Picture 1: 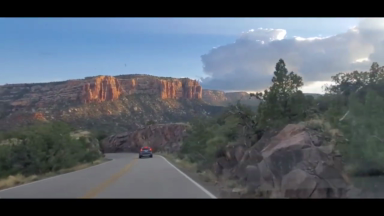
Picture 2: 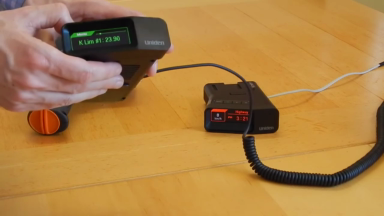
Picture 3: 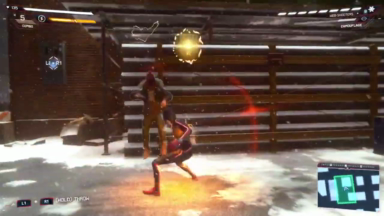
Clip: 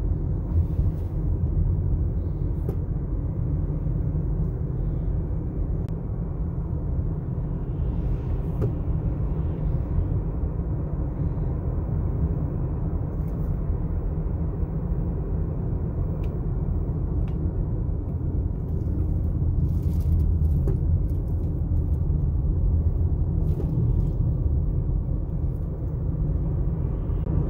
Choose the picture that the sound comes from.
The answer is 1